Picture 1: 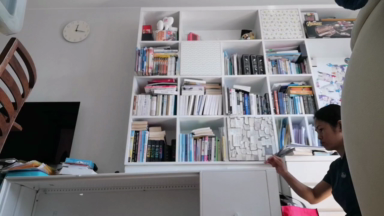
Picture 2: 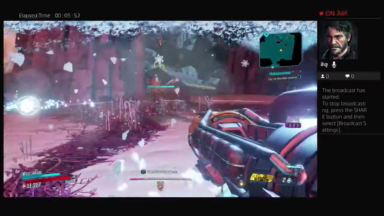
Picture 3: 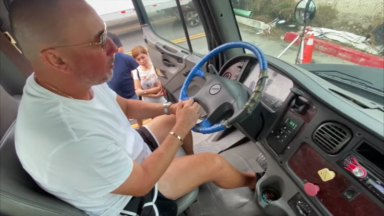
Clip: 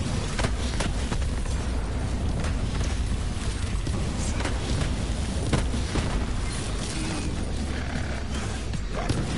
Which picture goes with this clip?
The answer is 2